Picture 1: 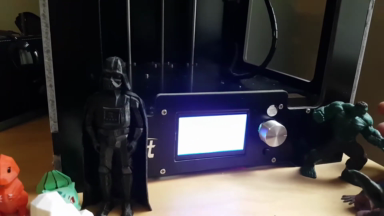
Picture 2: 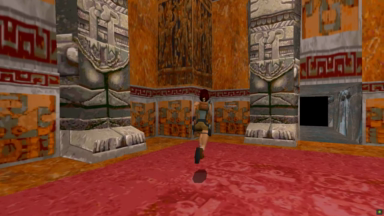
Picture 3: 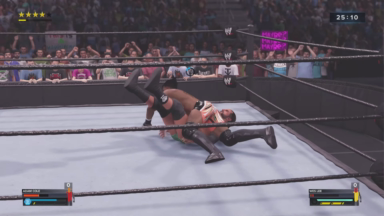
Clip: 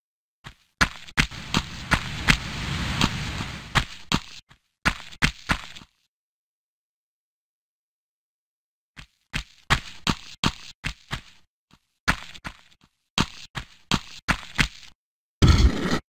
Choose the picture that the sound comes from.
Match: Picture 2